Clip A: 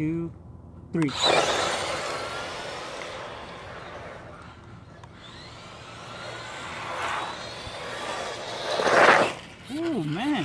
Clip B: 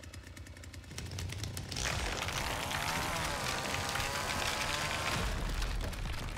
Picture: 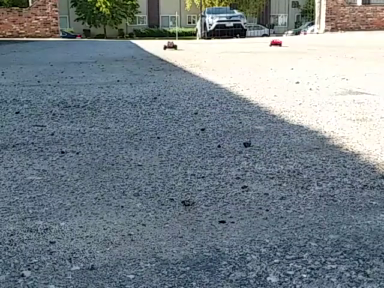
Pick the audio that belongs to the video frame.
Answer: A